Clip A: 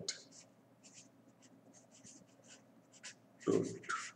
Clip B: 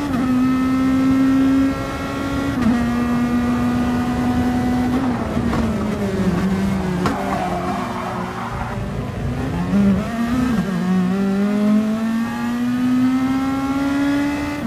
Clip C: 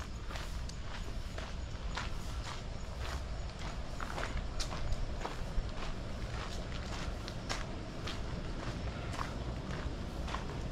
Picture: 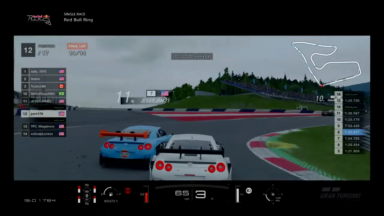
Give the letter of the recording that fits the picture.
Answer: B